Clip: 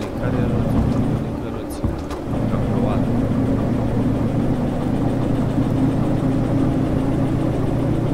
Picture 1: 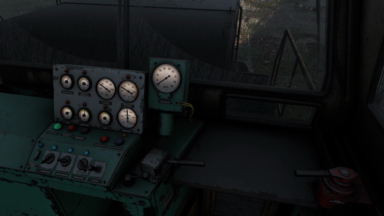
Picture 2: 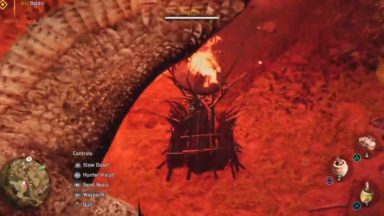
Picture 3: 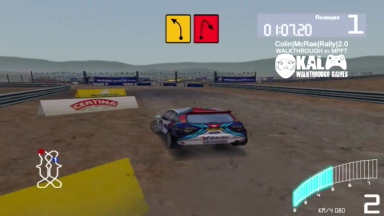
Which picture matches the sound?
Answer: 1